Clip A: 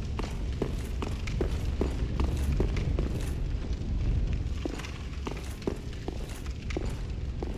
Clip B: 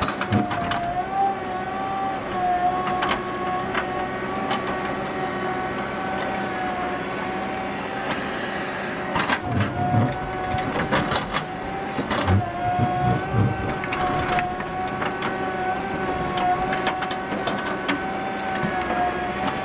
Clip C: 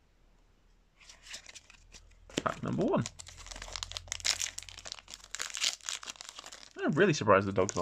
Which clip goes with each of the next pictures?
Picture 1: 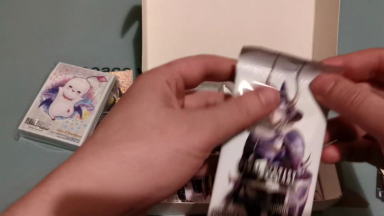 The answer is C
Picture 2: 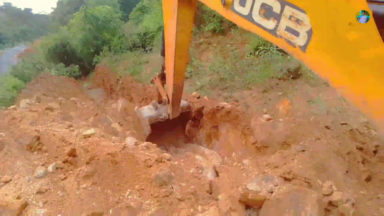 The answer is B